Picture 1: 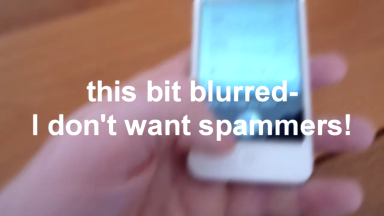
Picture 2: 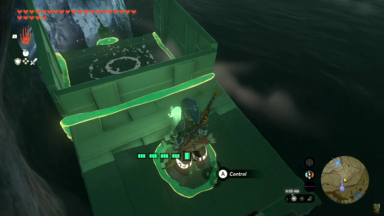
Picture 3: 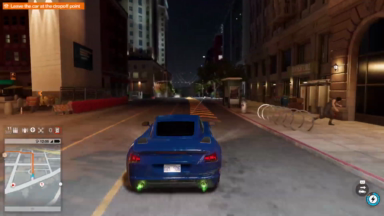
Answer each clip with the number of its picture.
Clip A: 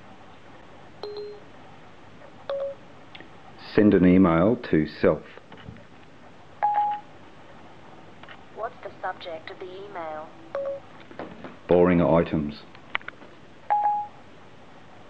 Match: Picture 1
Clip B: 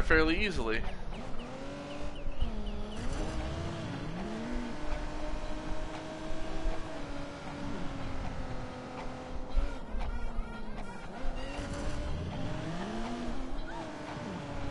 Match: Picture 3